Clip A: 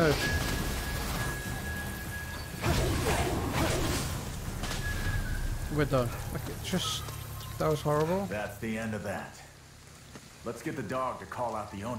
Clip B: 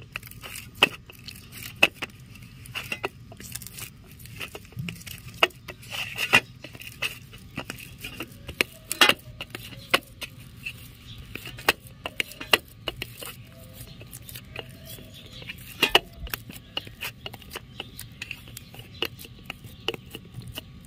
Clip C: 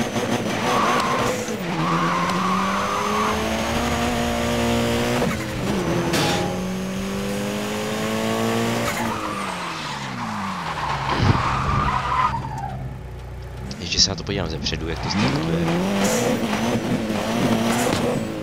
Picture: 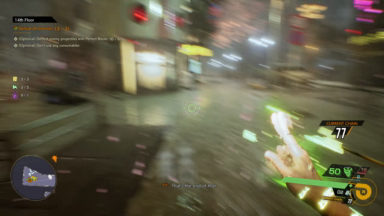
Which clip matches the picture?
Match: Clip A